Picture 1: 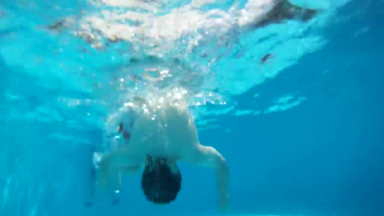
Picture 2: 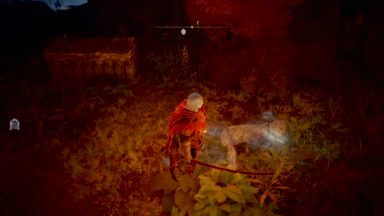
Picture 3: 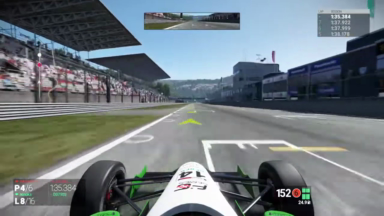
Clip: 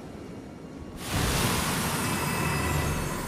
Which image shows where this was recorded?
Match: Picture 2